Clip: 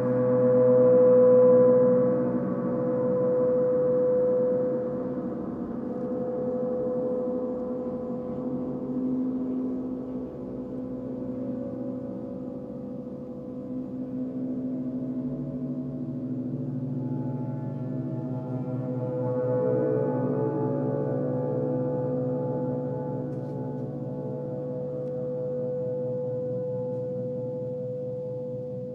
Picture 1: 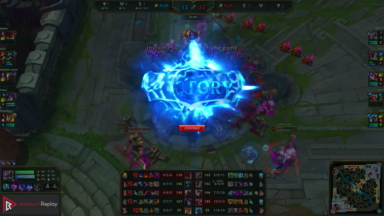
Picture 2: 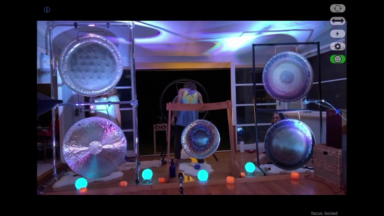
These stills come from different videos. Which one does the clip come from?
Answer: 2